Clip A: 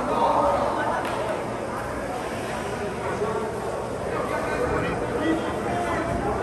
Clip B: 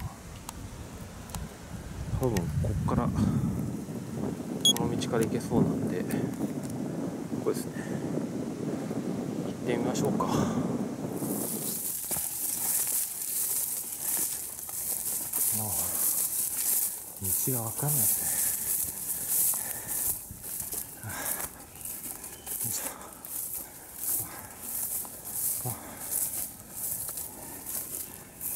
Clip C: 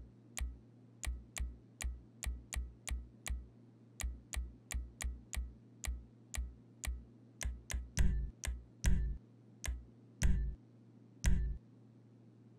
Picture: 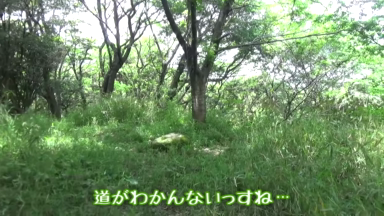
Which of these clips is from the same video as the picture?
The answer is B